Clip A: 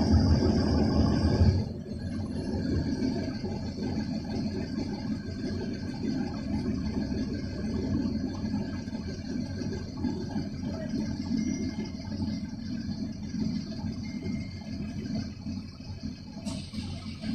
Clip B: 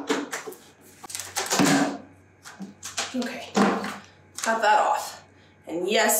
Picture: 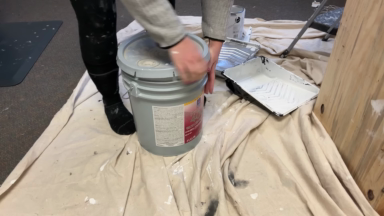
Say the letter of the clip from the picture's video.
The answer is B